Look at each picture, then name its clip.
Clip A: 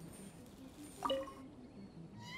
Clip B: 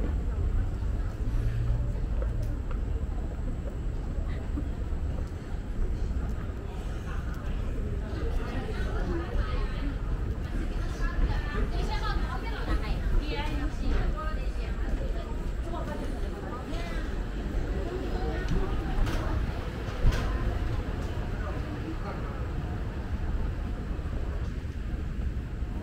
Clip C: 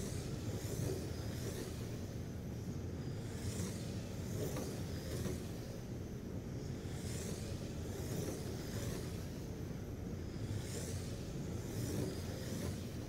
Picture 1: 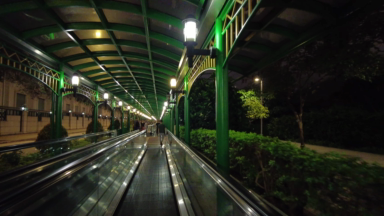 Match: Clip B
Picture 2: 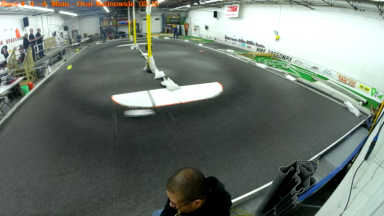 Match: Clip C